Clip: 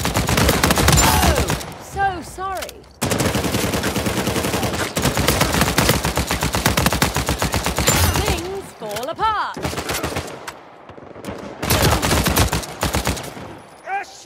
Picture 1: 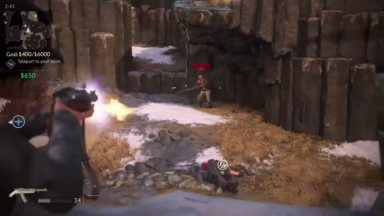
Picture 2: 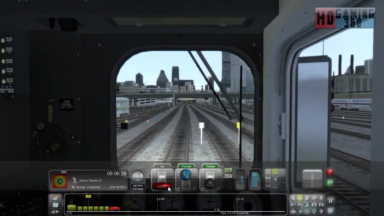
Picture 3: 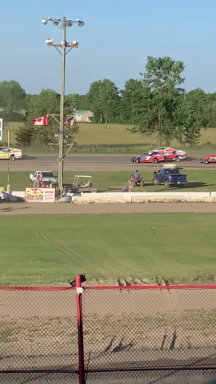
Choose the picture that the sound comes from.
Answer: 1